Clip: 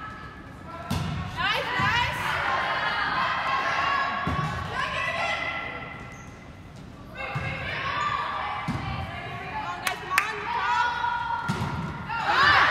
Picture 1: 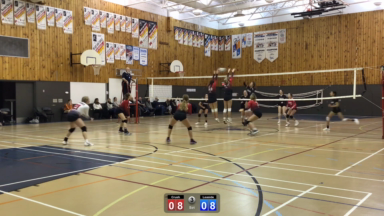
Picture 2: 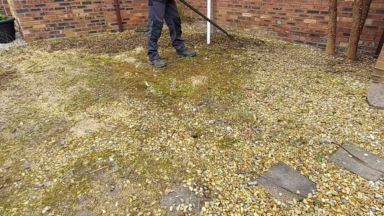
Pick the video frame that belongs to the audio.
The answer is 1